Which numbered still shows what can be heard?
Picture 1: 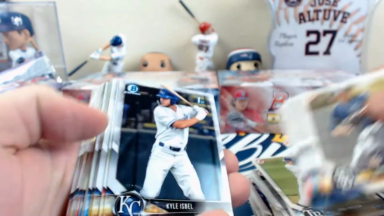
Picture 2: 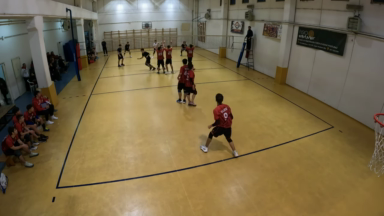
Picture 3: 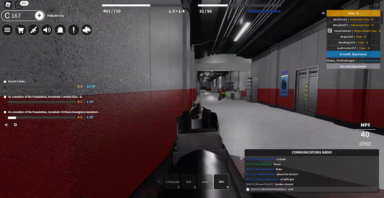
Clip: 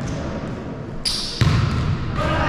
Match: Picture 2